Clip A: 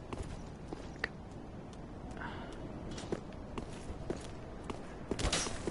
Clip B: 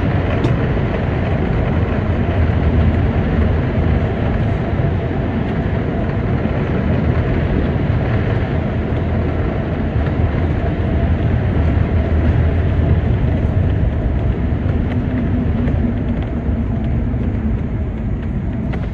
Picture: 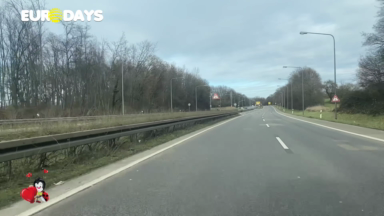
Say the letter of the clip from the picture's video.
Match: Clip B